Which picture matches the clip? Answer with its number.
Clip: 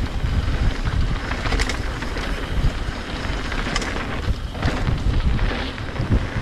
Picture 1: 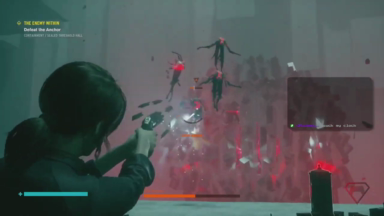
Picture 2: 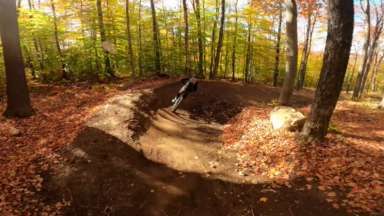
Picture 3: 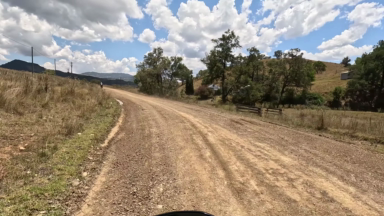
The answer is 2